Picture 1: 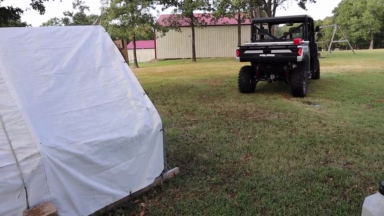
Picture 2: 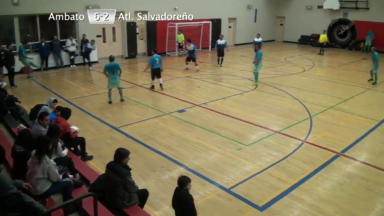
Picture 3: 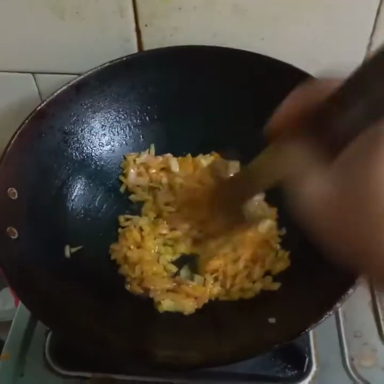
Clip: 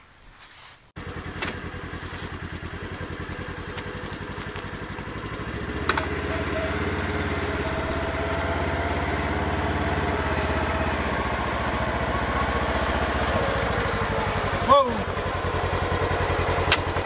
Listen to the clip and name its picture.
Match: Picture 1